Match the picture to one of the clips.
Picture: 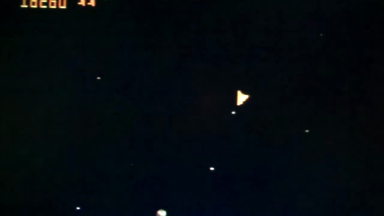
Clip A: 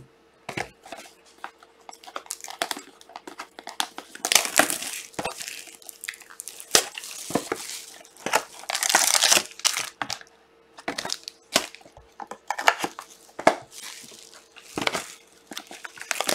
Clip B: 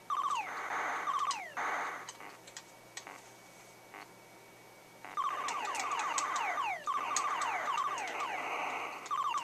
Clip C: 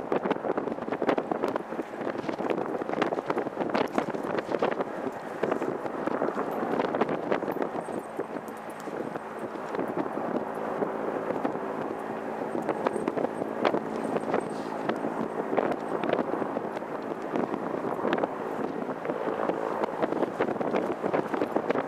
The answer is B